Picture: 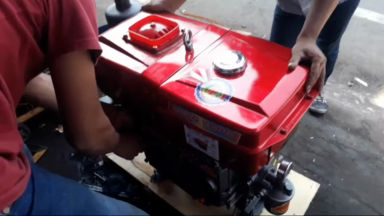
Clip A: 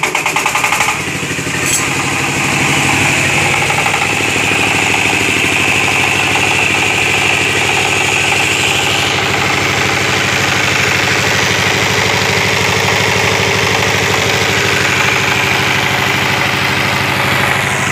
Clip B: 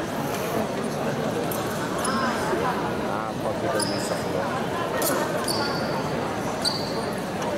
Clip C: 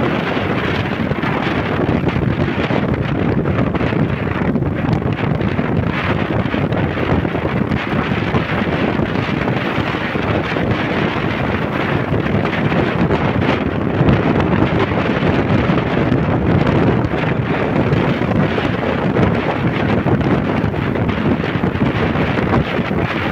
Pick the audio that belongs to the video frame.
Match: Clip A